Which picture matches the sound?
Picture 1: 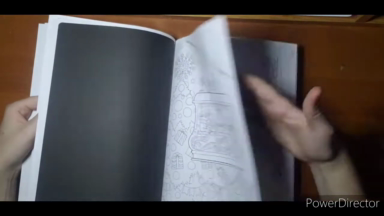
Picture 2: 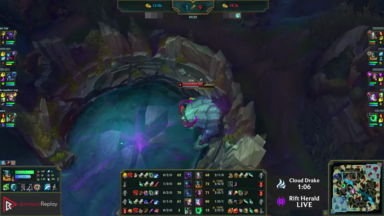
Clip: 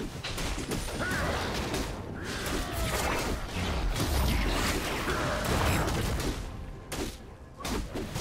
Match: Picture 2